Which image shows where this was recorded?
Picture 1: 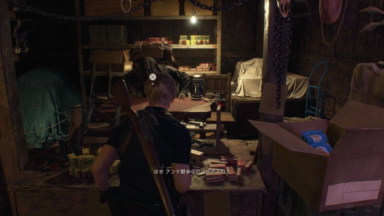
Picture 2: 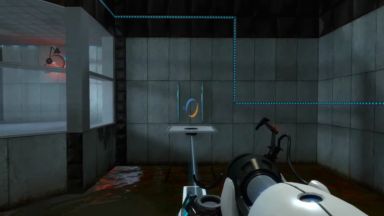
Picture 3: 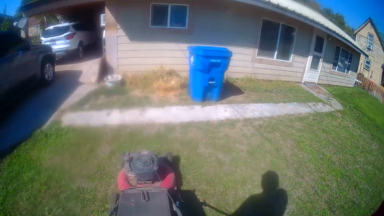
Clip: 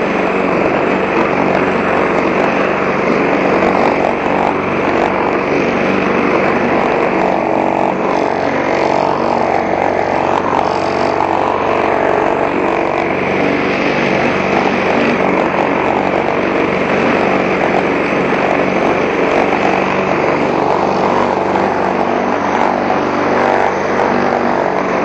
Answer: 3